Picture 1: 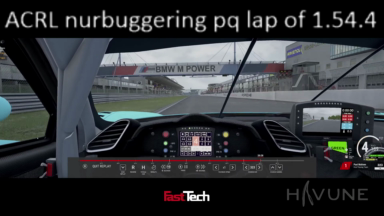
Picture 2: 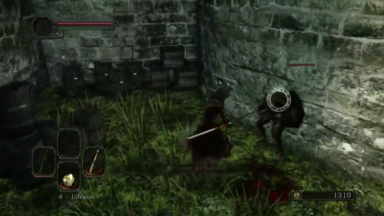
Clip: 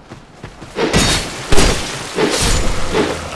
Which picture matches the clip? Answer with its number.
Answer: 2